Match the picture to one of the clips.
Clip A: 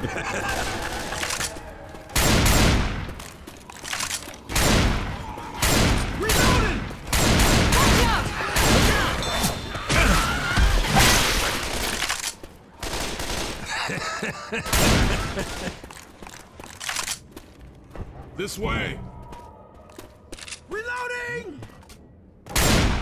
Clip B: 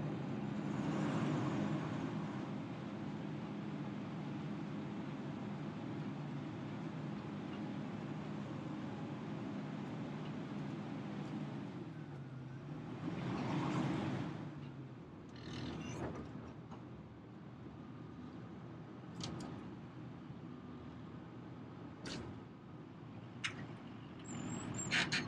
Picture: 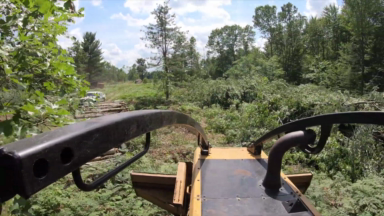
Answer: B